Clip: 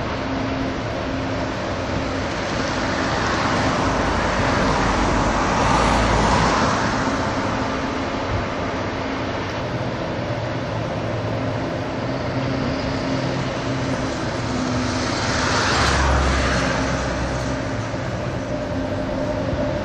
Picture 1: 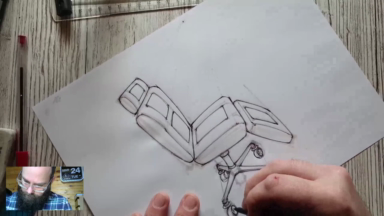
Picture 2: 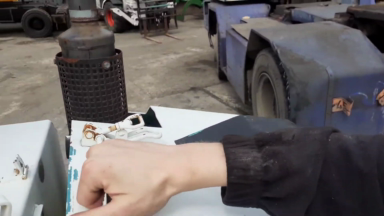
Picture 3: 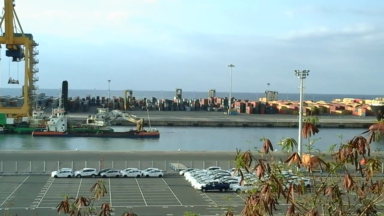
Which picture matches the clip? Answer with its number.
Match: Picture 3